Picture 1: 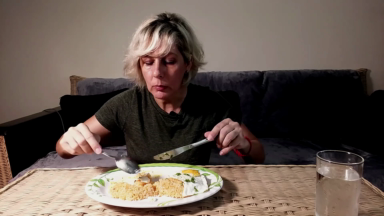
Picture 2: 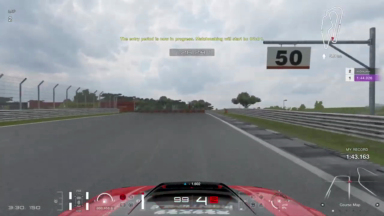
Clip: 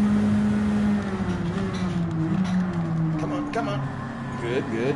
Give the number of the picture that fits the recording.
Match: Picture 2